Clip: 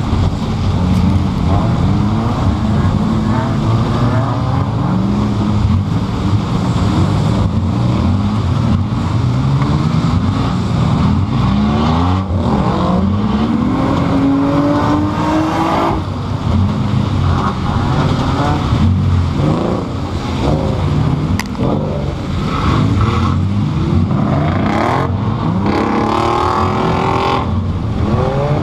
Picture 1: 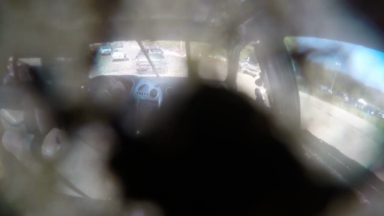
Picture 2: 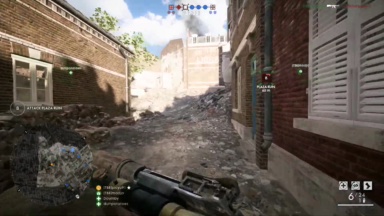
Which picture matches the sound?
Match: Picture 1